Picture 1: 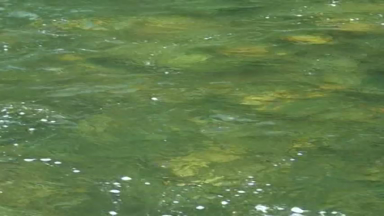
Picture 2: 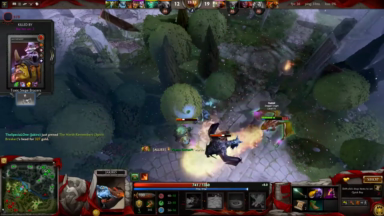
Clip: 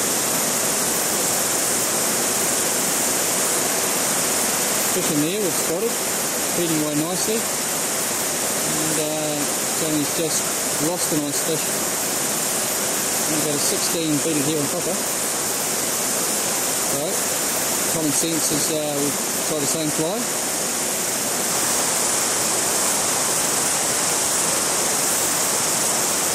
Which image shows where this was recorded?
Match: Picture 1